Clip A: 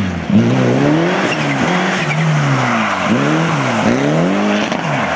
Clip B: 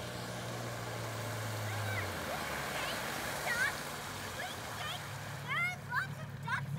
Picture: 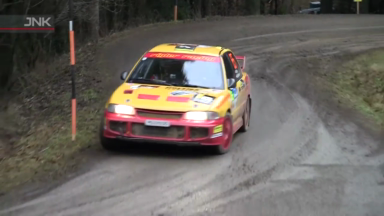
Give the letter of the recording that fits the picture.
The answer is A